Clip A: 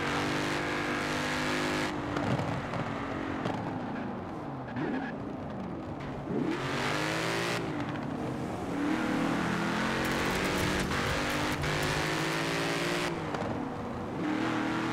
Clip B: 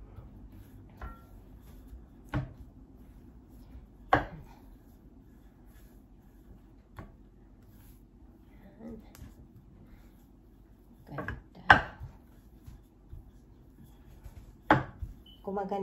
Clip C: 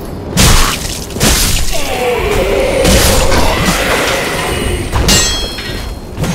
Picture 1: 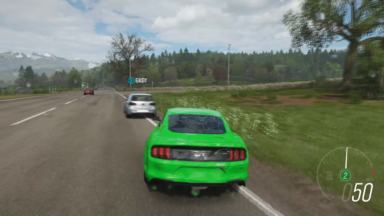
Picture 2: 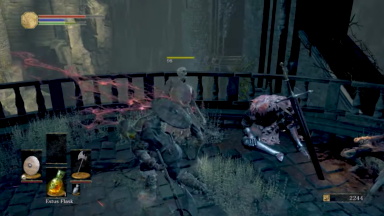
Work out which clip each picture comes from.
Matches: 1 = A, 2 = C